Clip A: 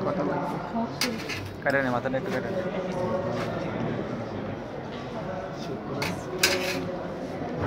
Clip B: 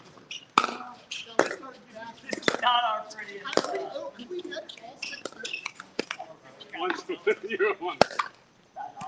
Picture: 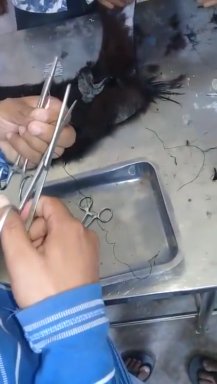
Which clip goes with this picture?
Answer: A